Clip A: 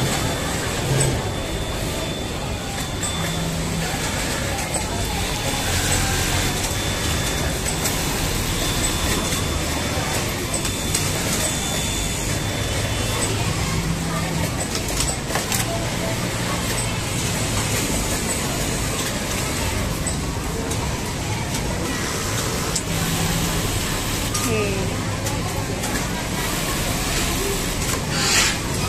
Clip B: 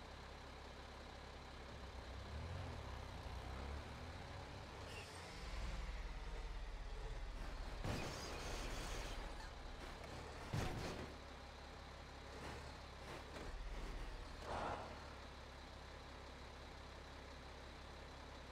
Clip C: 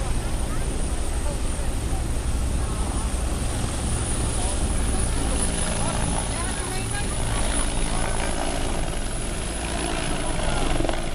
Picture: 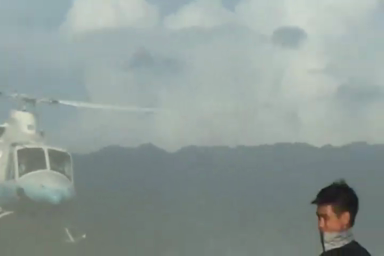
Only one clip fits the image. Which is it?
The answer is C